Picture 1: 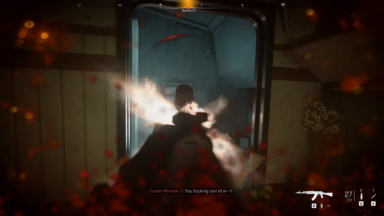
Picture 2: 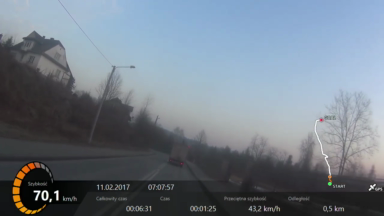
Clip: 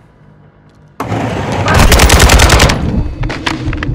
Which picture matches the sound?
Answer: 1